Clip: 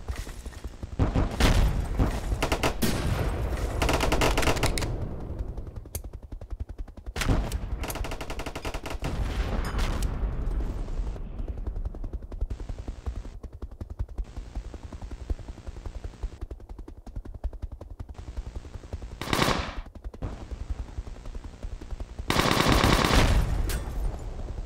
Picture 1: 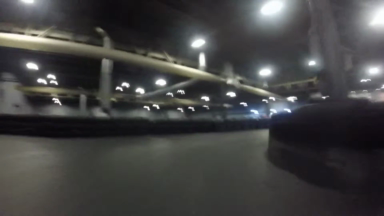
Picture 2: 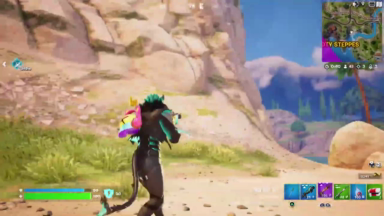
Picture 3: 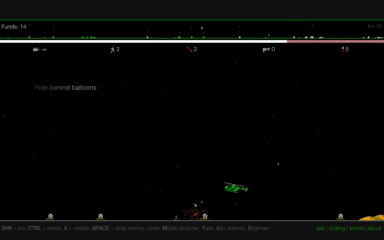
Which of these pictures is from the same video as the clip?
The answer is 3